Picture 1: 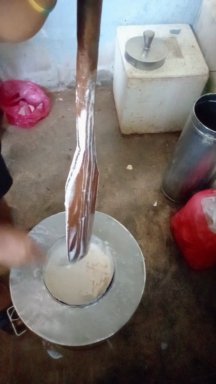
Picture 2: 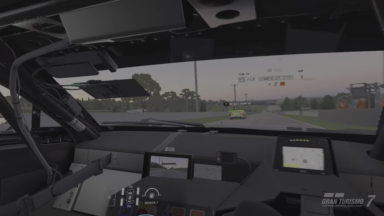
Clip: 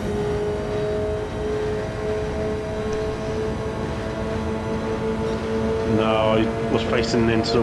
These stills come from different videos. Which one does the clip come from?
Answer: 2